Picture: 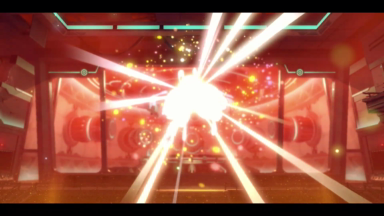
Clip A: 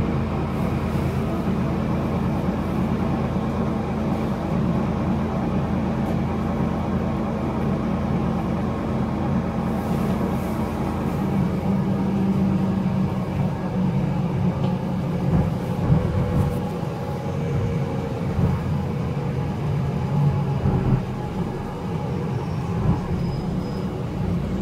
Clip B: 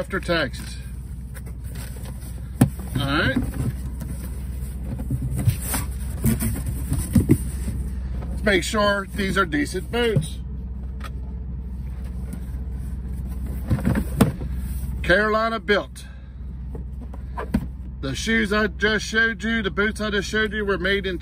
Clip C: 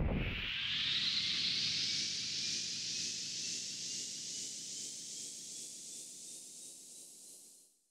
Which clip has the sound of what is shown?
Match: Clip C